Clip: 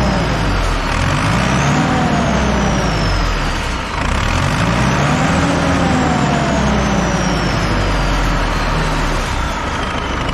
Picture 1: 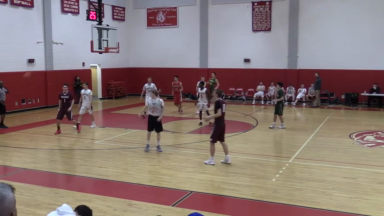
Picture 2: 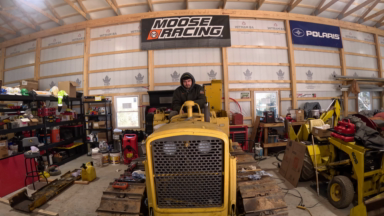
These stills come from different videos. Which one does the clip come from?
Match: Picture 2